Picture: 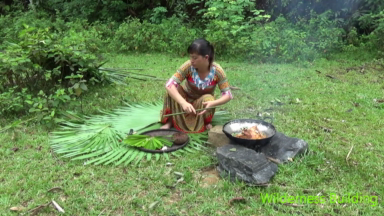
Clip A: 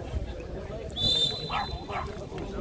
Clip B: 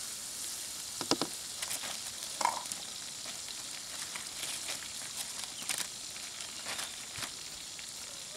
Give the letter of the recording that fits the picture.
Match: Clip B